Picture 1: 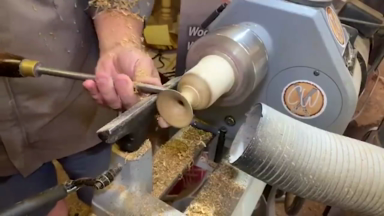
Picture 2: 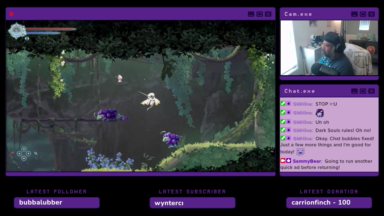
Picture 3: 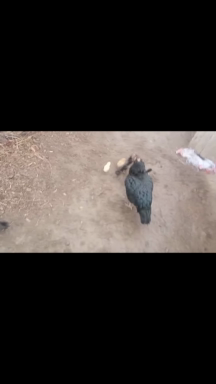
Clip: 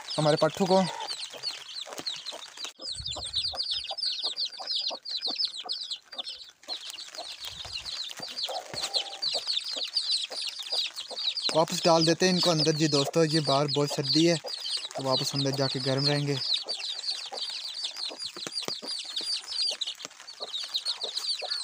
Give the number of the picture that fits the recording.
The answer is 3